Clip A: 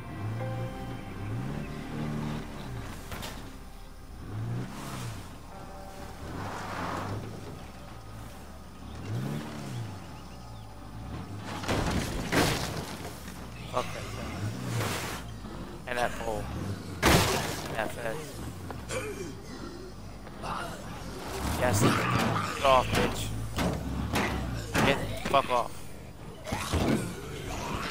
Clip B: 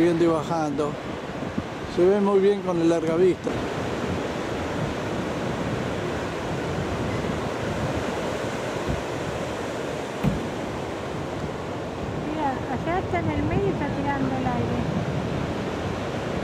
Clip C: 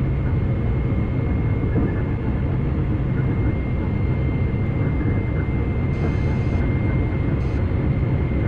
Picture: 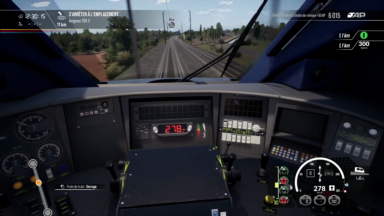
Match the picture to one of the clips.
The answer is C